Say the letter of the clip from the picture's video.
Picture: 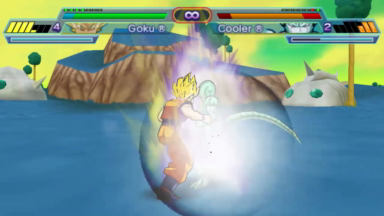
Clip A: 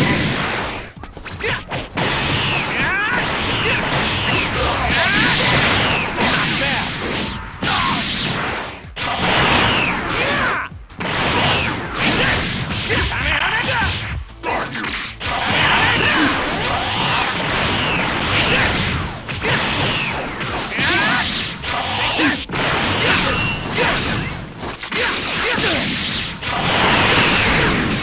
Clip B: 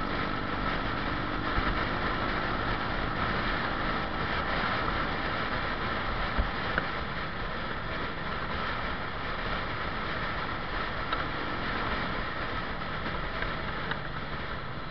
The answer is A